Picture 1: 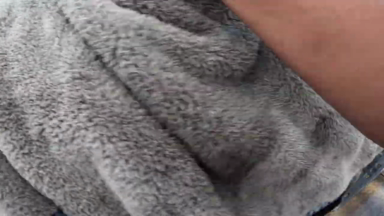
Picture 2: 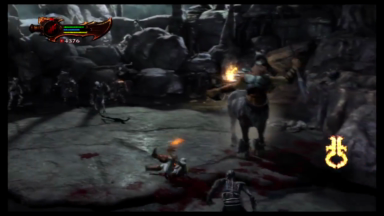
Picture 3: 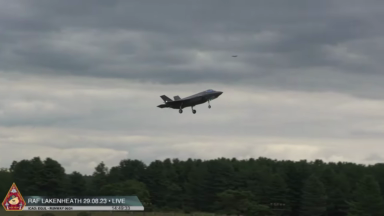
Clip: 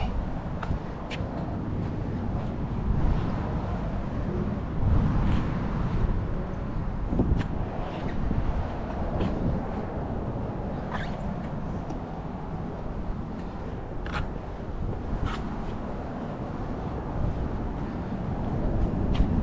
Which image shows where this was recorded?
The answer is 1